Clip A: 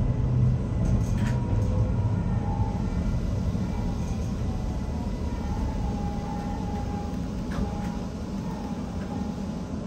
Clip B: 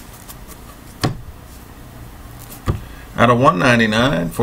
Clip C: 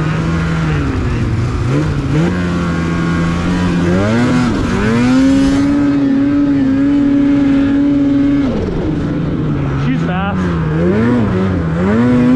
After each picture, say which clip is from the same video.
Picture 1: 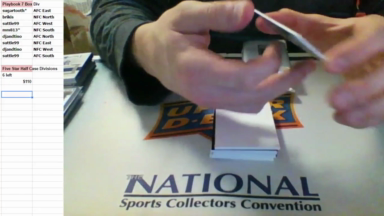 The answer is B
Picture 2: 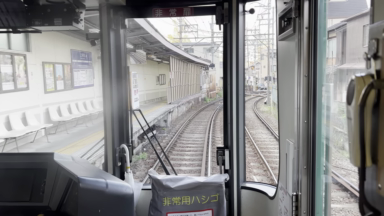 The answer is A